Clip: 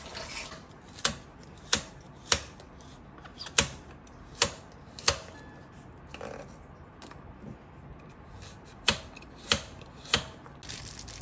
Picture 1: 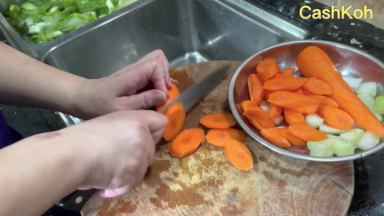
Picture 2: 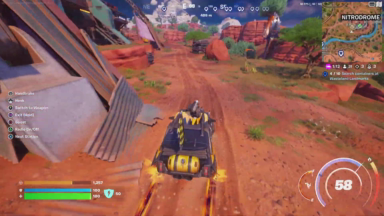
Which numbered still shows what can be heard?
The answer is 1